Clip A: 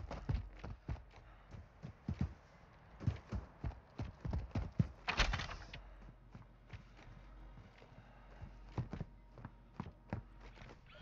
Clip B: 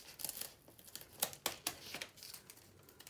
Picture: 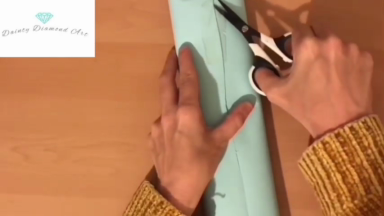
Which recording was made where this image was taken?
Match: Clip B